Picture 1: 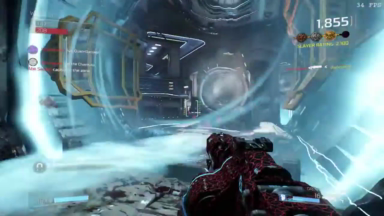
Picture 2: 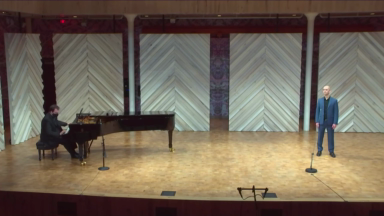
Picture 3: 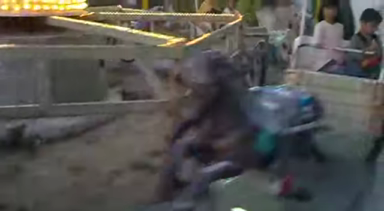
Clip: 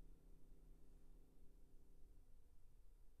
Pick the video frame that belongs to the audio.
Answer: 2